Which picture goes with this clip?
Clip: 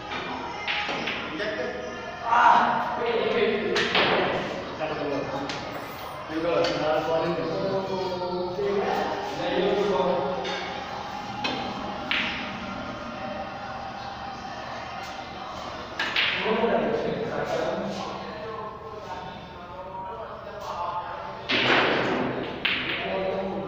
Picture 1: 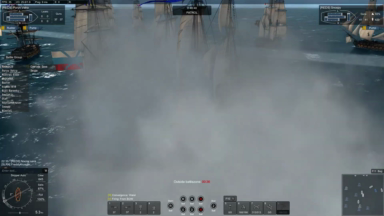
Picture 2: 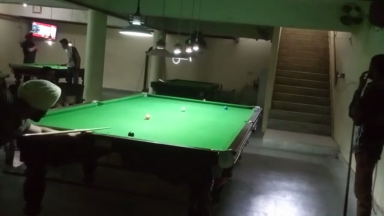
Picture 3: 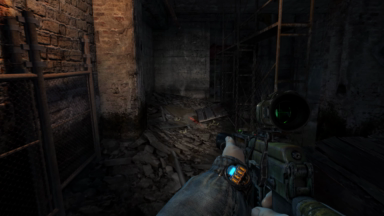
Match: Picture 2